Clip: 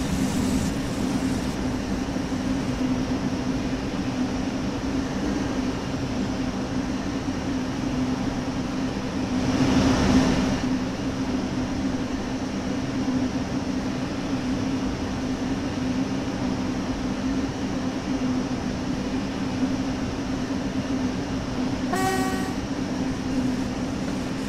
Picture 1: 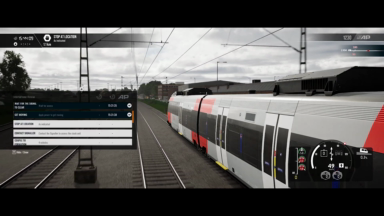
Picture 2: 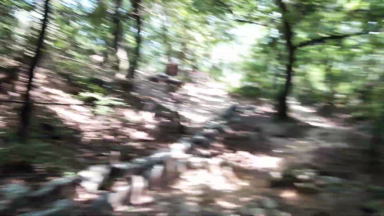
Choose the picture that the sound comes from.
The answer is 1